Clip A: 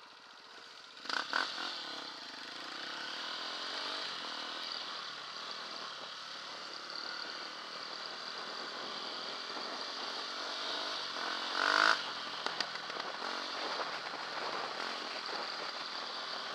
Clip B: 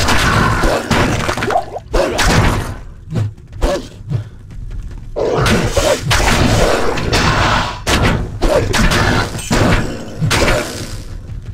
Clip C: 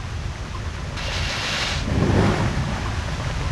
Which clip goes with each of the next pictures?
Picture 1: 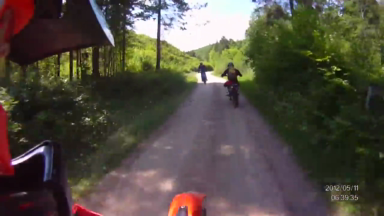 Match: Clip A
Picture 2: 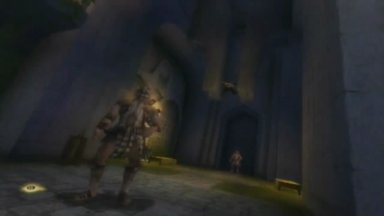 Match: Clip C